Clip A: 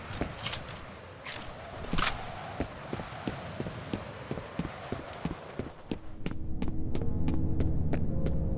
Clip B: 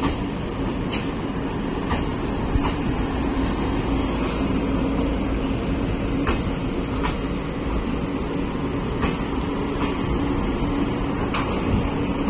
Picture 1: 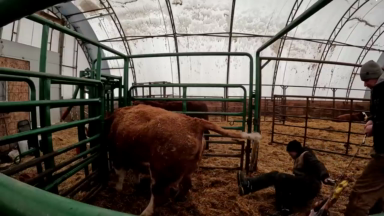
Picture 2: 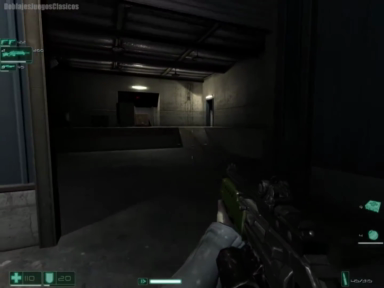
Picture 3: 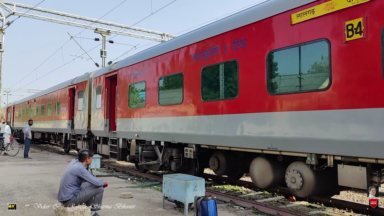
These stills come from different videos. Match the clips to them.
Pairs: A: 2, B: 3